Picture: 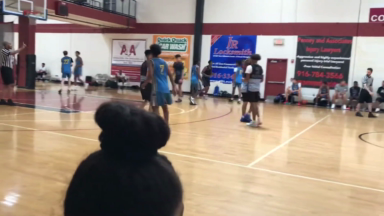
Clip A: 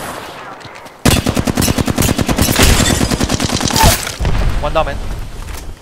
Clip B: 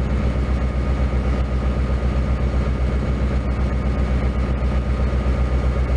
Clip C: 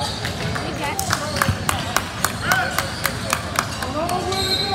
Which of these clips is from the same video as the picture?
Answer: C